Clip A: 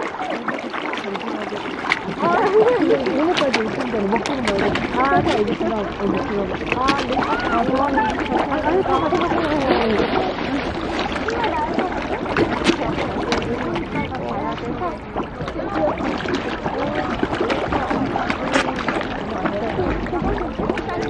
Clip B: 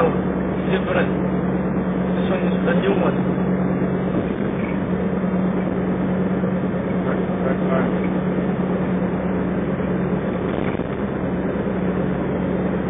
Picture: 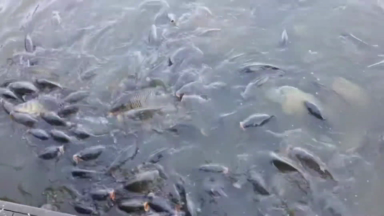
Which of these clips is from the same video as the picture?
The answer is A